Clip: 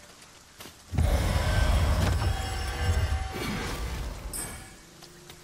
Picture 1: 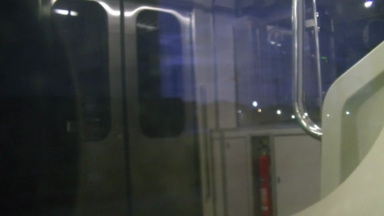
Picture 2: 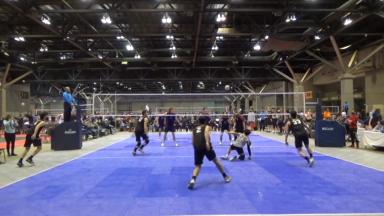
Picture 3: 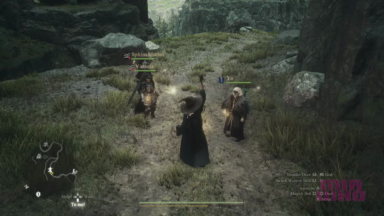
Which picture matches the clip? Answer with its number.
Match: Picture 3